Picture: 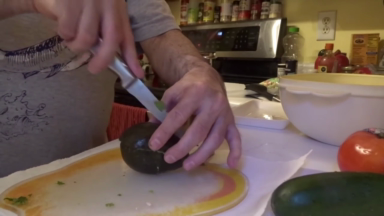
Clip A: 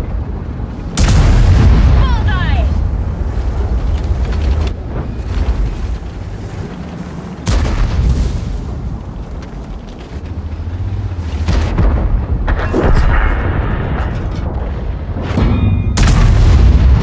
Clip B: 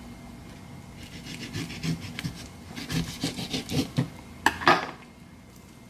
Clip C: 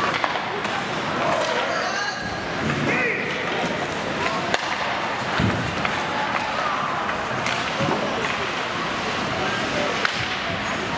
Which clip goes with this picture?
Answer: B